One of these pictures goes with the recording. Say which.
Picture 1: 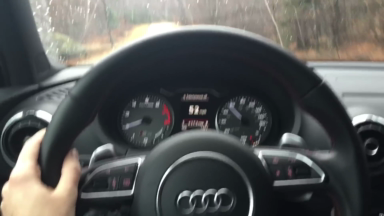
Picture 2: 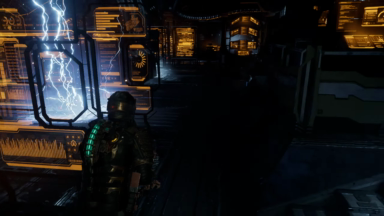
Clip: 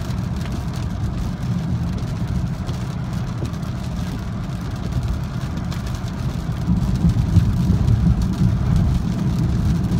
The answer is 1